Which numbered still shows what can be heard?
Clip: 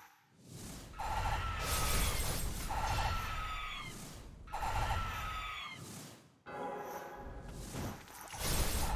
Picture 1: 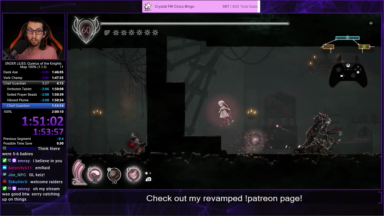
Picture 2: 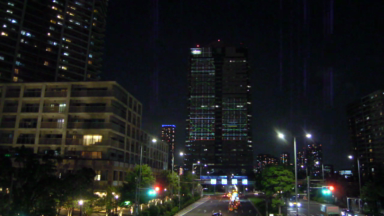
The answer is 1